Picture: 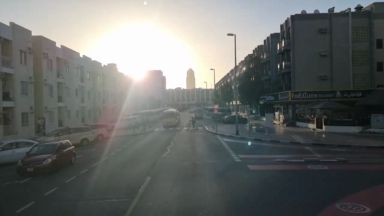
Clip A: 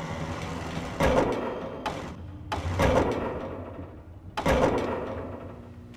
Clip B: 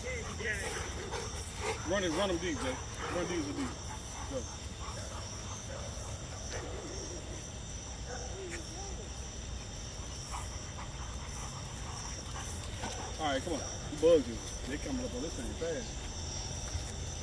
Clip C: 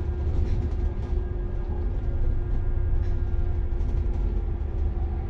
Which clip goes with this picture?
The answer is C